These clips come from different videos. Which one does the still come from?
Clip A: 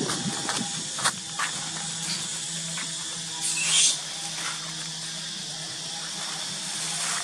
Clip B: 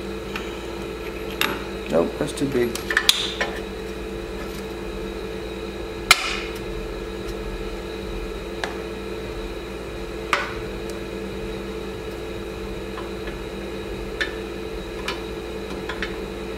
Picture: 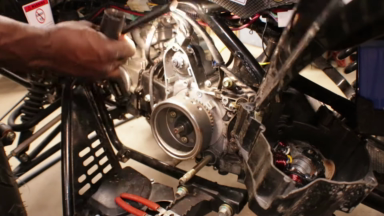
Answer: B